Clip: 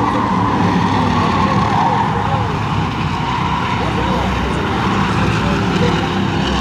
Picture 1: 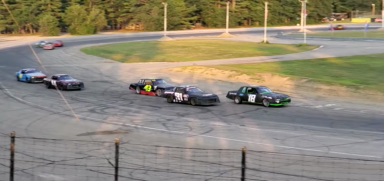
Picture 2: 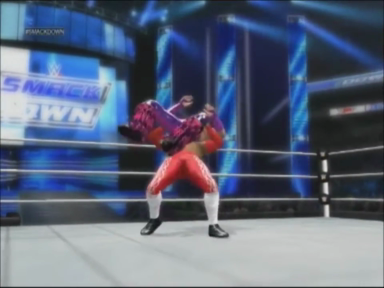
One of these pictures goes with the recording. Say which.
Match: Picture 1